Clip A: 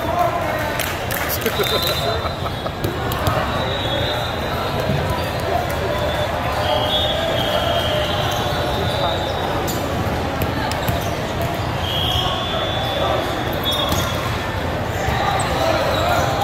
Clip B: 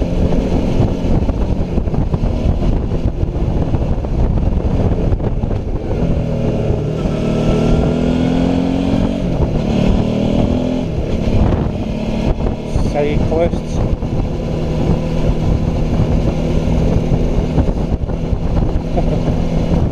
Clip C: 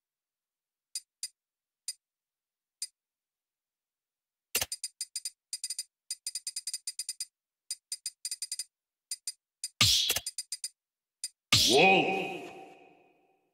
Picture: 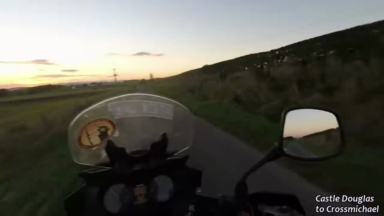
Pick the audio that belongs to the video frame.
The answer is B